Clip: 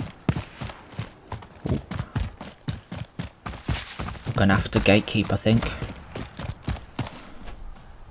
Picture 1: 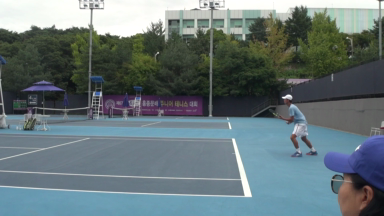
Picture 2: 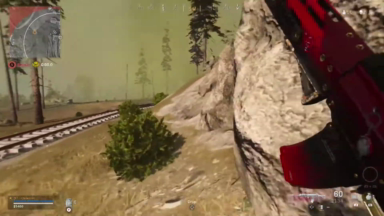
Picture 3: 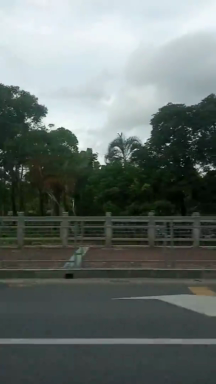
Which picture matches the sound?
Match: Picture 2